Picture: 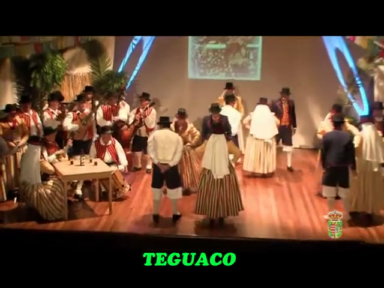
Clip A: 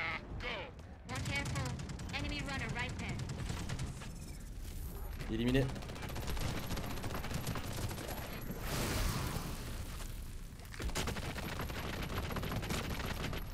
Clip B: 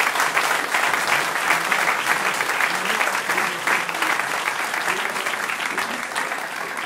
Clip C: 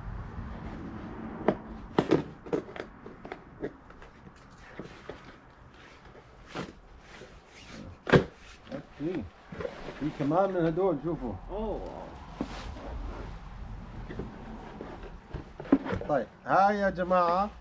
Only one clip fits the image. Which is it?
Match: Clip B